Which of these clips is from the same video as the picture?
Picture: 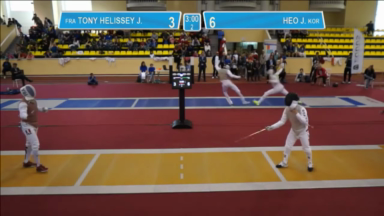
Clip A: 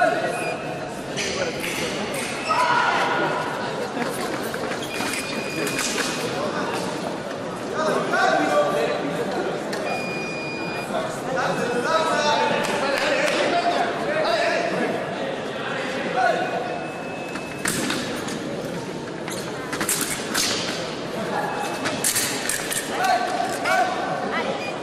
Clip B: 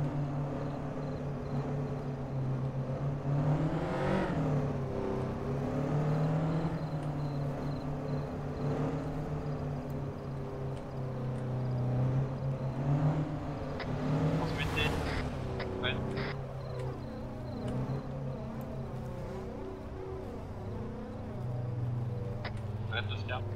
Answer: A